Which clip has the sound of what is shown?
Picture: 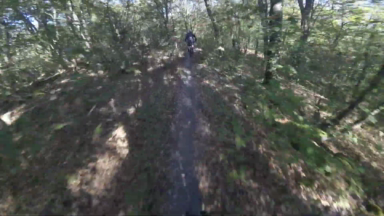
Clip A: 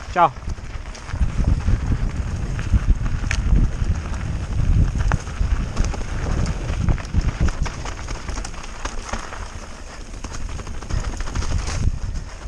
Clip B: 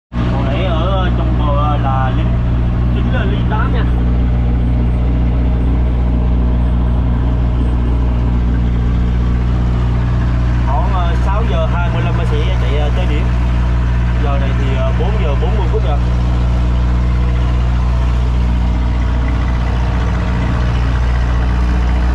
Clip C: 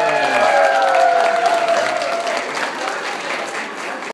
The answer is A